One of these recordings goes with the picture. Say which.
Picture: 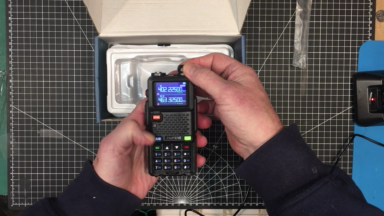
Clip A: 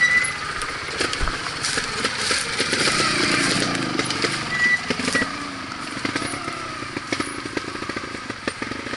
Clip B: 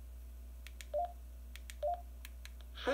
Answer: B